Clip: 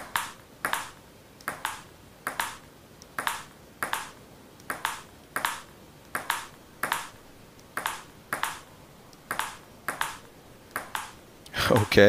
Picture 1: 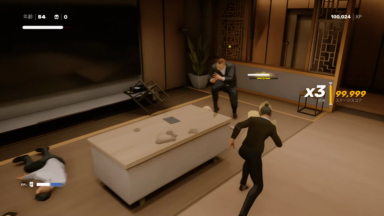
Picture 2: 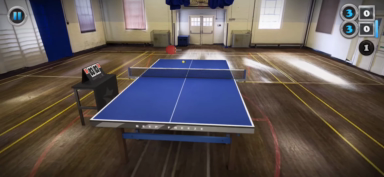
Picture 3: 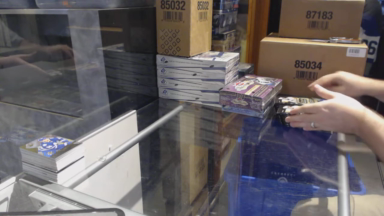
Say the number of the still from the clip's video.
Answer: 2